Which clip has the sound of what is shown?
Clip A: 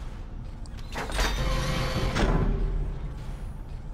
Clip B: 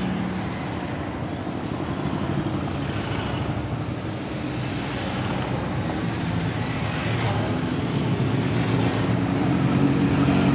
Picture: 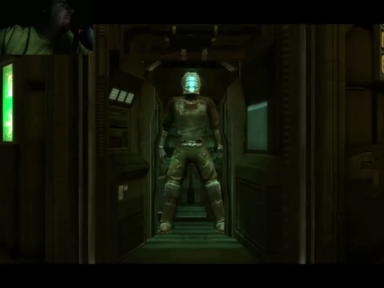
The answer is A